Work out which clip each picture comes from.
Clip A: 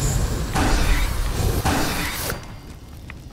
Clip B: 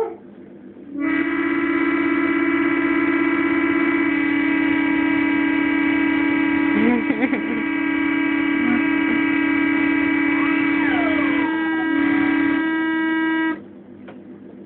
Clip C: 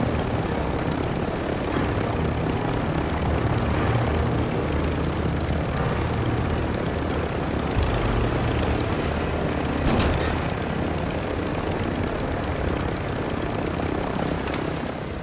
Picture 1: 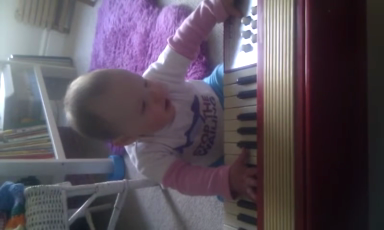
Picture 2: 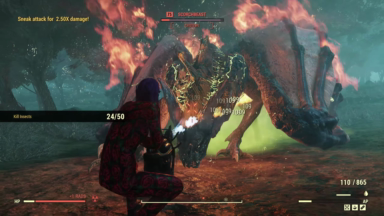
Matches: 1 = B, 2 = A